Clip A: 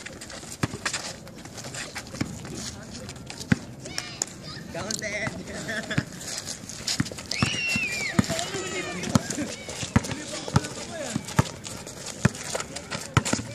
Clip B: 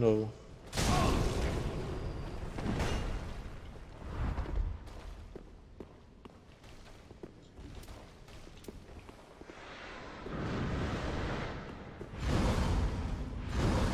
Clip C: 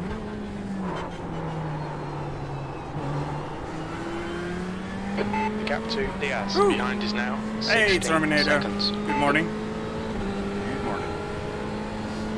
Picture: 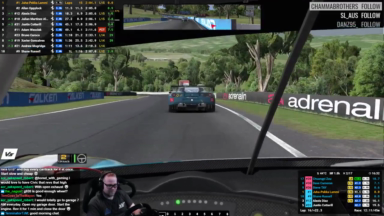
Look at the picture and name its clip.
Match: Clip C